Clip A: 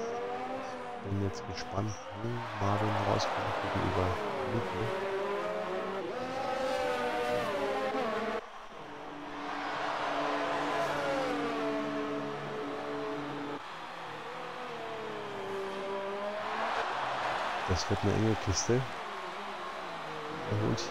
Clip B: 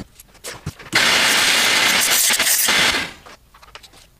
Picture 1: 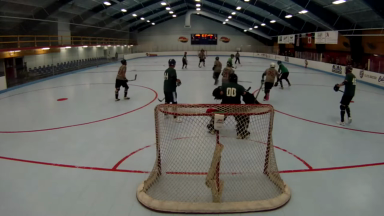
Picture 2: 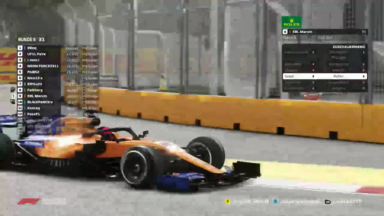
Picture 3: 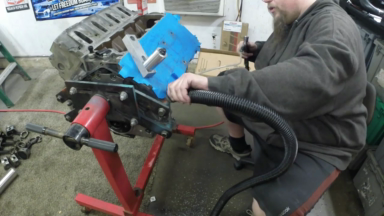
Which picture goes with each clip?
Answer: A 2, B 3